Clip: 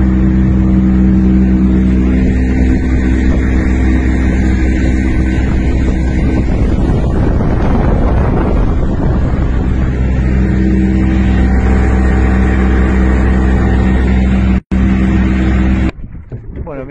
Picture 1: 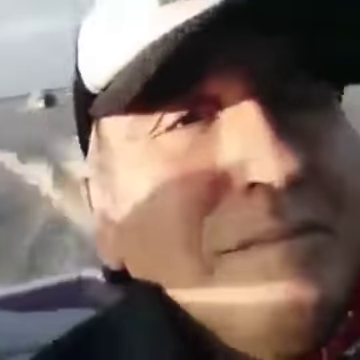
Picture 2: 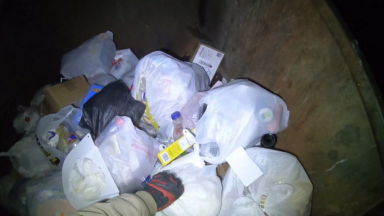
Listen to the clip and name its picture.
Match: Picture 1